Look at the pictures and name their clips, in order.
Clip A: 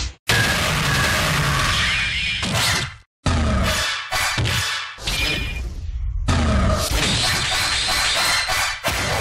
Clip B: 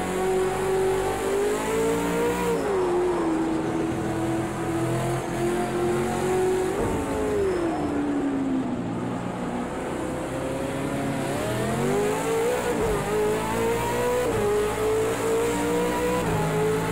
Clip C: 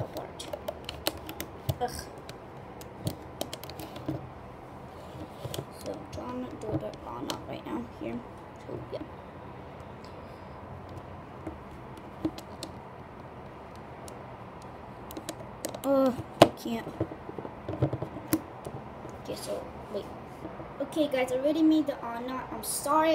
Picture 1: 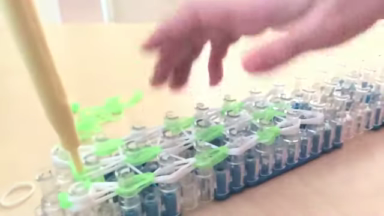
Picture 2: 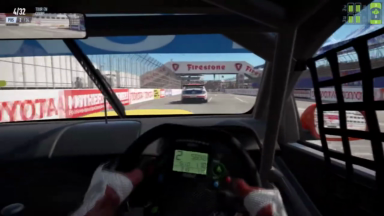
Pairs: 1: C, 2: B